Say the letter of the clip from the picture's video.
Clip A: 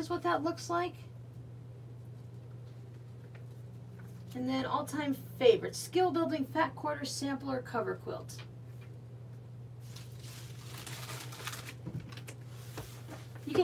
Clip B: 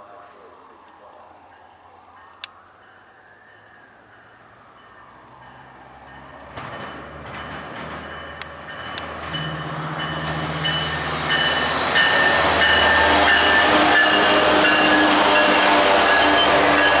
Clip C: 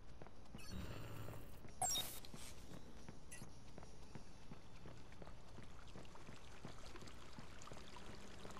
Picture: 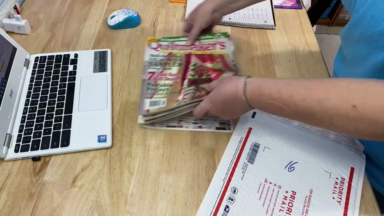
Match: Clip A